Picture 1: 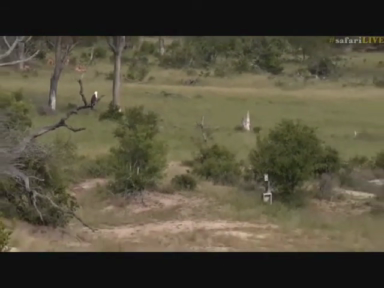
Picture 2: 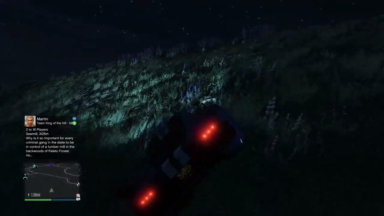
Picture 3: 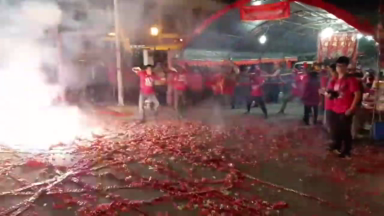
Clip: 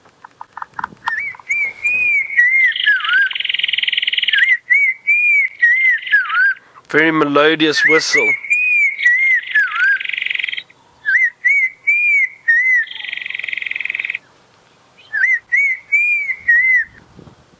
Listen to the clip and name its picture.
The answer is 1